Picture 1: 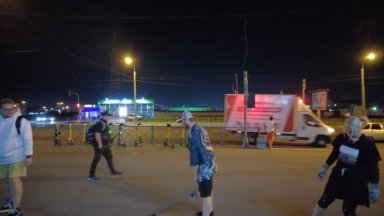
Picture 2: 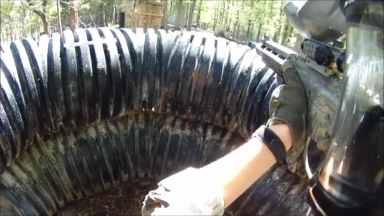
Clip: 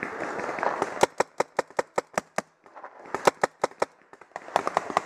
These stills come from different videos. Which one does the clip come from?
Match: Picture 2